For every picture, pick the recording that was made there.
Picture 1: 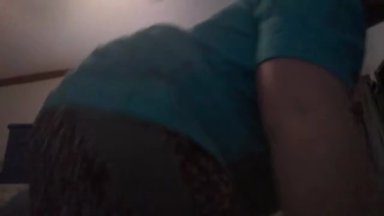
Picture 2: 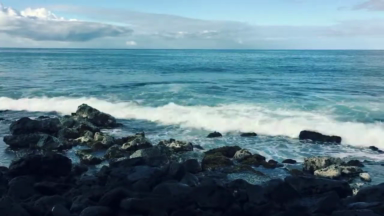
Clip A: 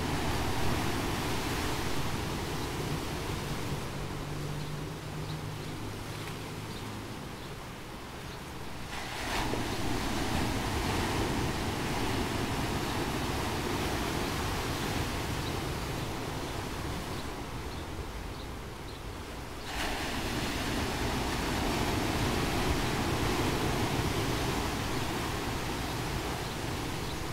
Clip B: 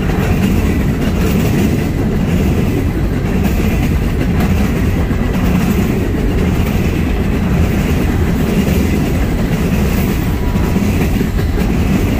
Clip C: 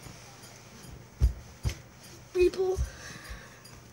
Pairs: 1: C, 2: A